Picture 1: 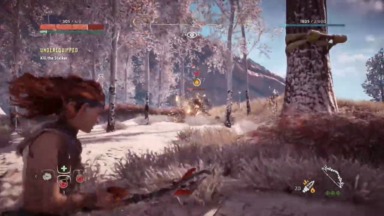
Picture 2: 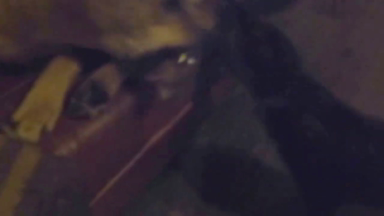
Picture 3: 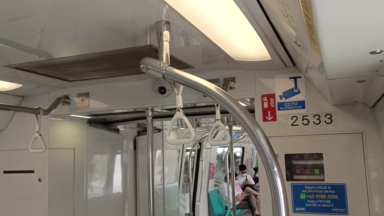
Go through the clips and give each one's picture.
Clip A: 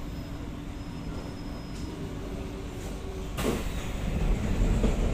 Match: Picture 3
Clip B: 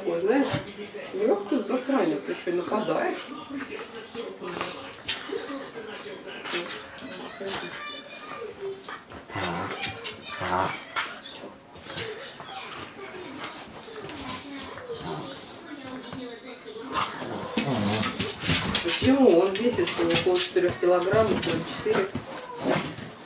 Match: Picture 2